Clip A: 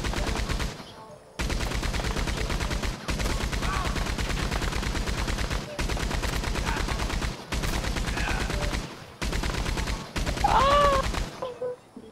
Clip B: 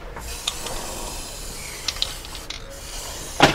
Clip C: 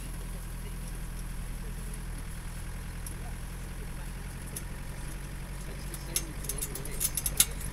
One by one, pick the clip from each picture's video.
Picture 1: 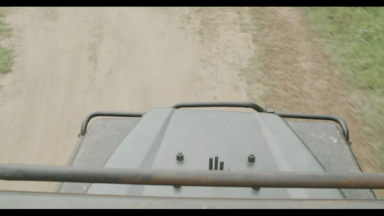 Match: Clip C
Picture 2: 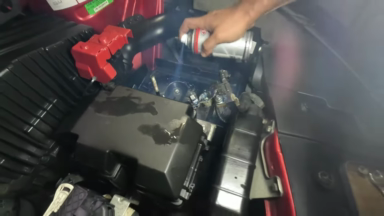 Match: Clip B